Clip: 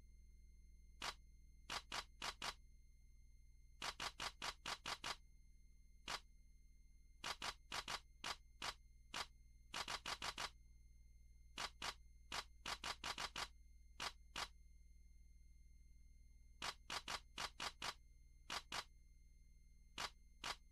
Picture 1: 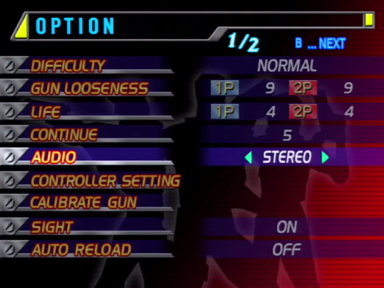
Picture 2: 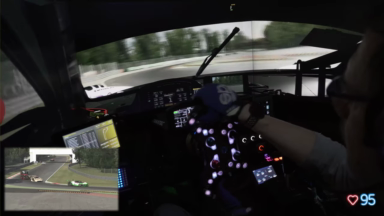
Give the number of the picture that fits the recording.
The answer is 1